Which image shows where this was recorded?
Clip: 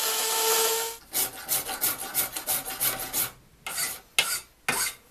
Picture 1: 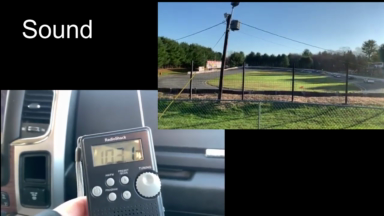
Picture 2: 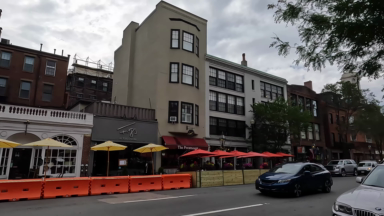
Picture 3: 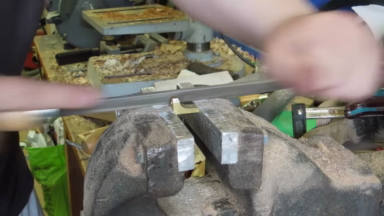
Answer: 3